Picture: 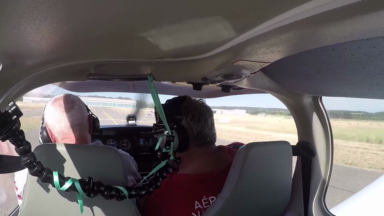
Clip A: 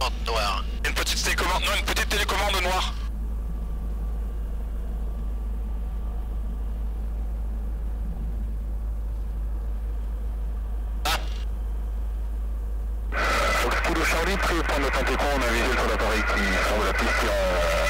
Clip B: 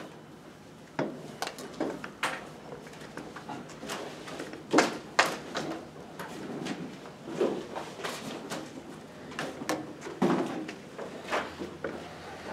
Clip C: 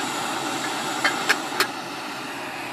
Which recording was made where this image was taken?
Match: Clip A